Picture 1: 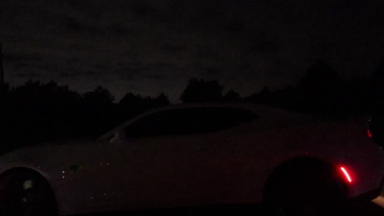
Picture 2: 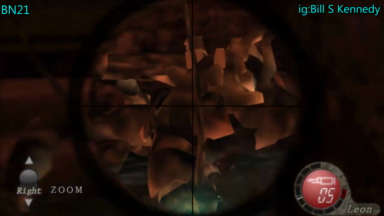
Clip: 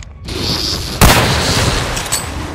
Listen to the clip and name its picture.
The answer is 2